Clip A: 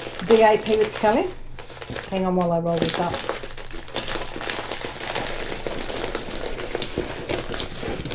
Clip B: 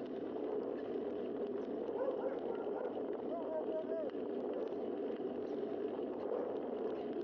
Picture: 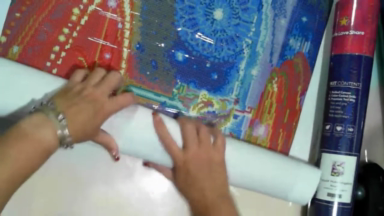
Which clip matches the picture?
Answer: A